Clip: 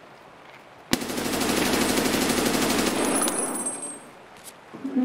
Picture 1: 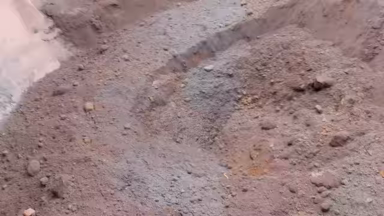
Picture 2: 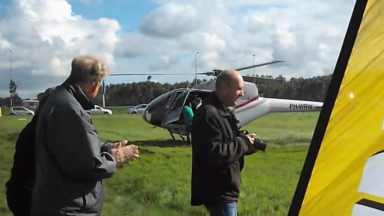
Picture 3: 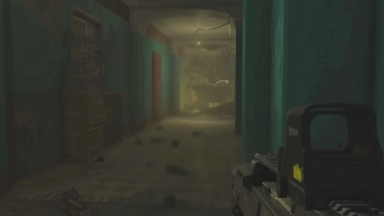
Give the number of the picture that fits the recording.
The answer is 3